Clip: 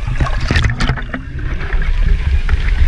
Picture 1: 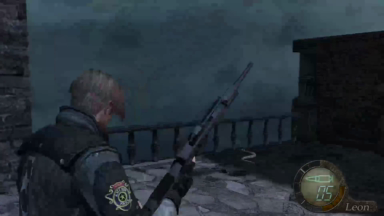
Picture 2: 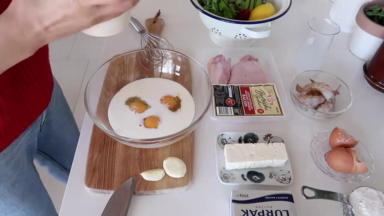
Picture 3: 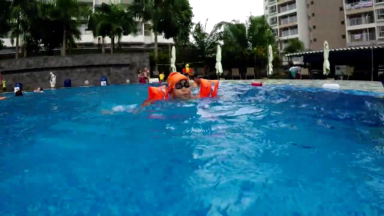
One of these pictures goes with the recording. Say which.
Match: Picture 3